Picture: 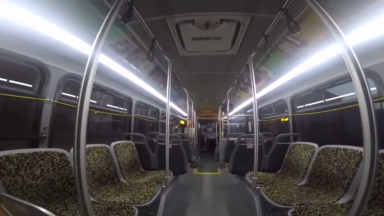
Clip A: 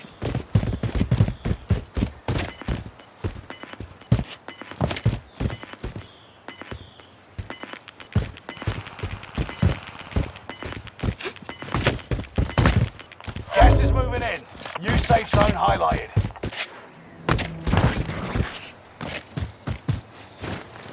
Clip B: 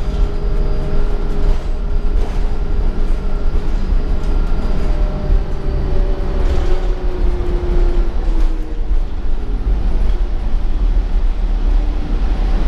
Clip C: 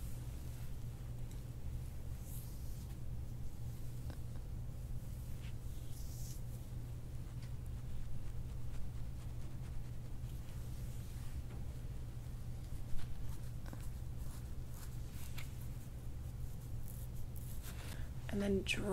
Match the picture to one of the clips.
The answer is B